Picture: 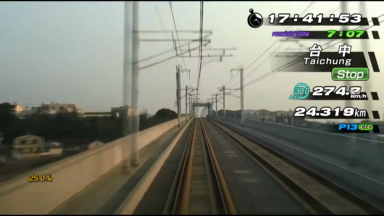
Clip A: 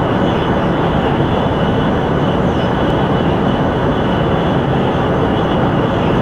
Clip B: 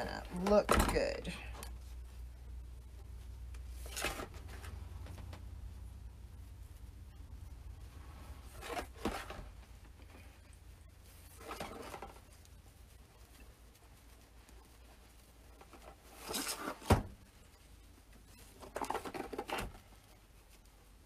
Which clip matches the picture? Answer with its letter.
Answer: A